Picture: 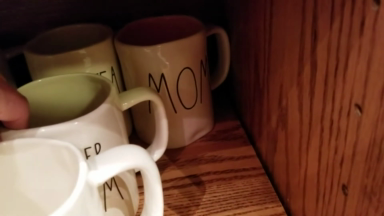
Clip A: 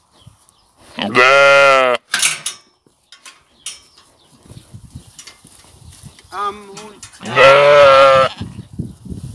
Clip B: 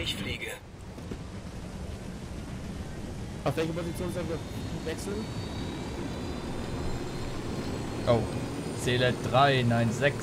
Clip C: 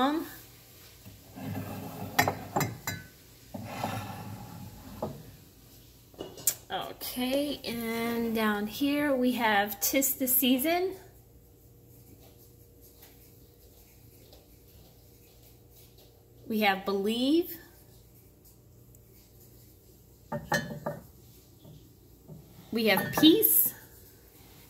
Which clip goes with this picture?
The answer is C